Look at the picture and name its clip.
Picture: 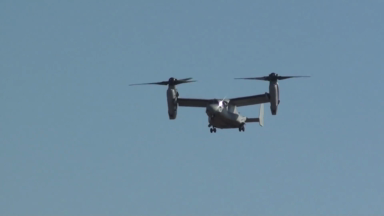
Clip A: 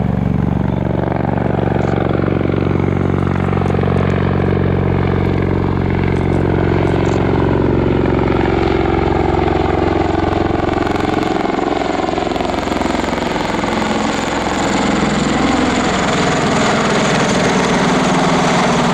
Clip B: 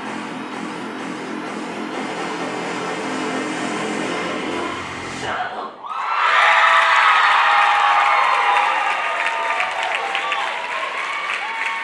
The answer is A